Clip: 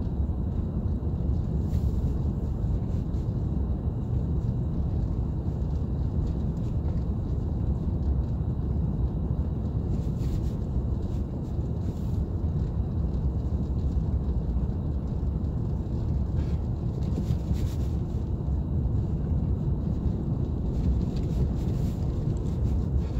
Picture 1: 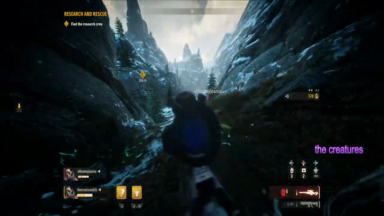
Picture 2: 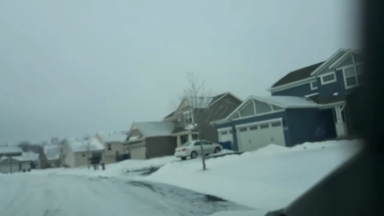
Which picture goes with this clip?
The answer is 2